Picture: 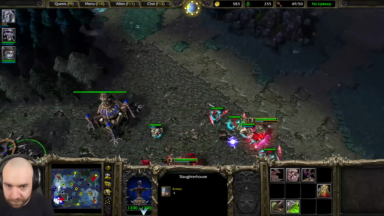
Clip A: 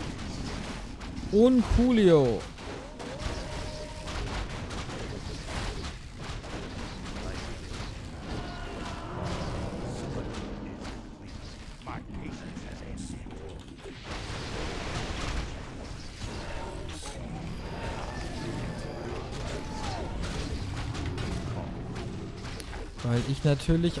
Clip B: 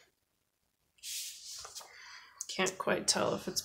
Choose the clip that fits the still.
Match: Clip A